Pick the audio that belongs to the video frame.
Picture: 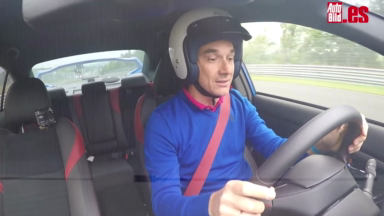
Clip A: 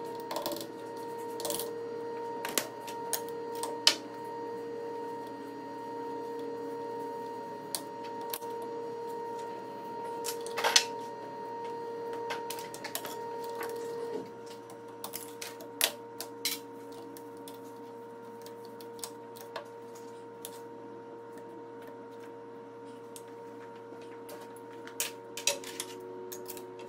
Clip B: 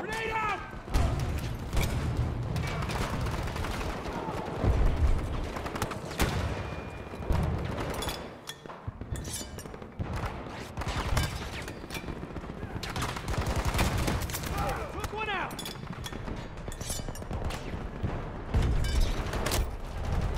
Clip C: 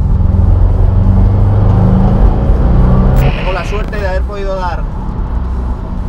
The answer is C